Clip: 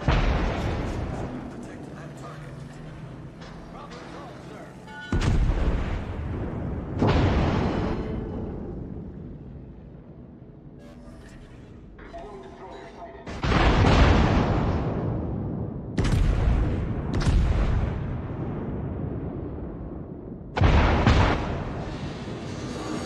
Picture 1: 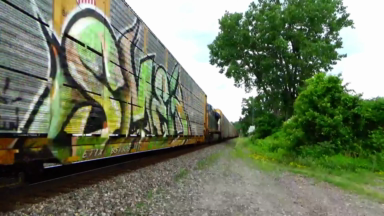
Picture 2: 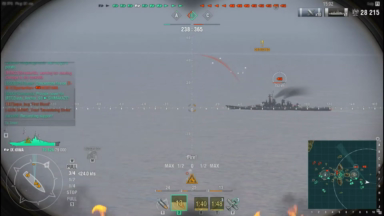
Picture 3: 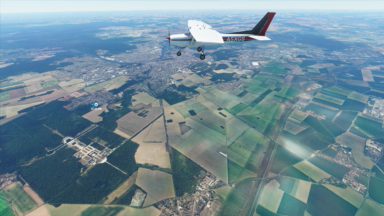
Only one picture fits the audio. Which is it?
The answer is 2